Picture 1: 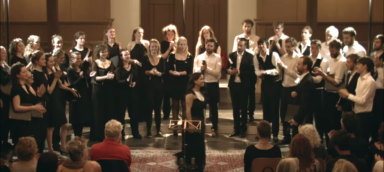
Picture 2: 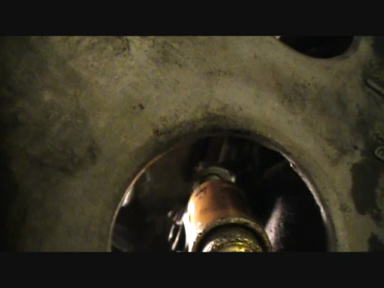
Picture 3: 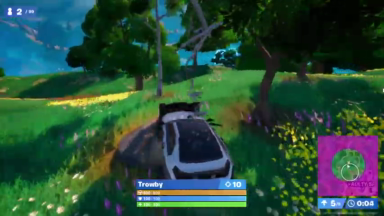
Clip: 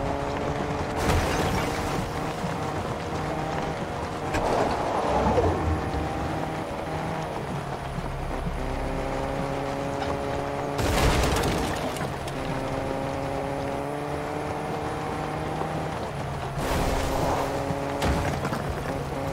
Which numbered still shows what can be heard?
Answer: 3